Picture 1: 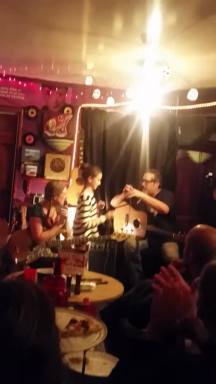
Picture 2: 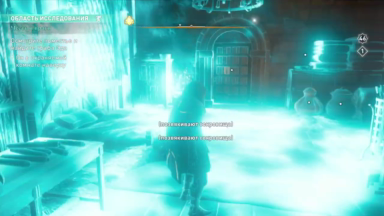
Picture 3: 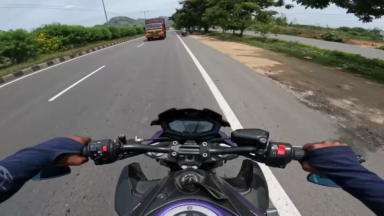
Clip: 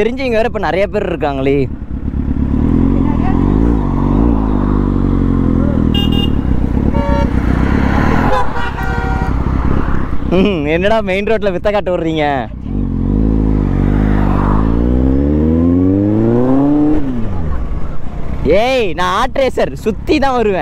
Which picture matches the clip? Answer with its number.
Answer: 3